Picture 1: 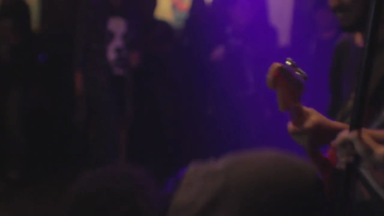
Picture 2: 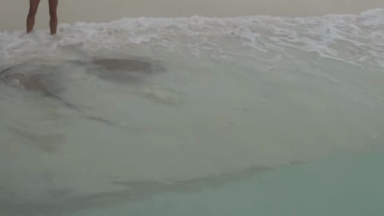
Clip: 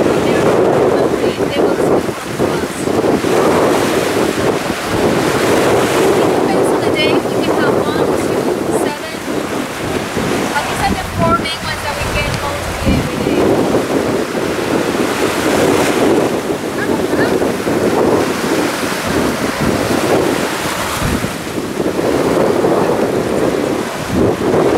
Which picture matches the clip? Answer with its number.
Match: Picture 2